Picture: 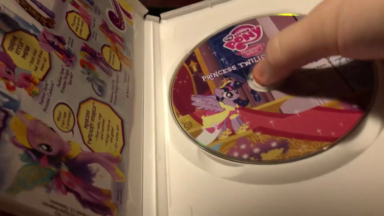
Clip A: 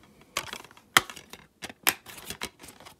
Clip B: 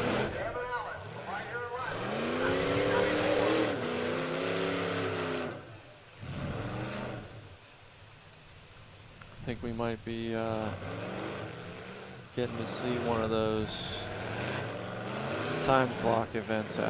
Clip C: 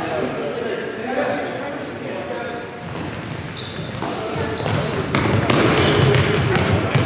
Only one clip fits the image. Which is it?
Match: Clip A